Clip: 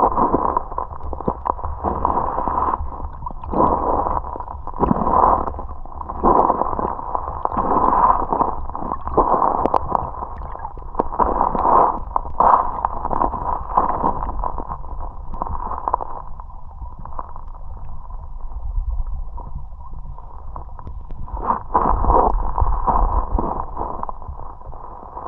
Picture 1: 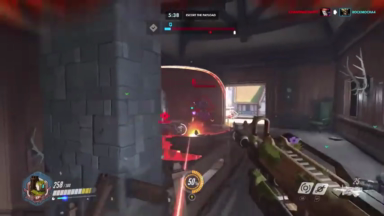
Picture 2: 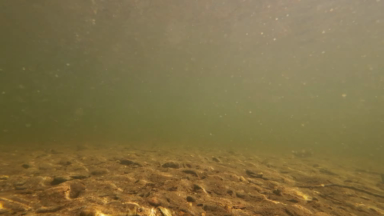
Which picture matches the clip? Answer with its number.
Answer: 2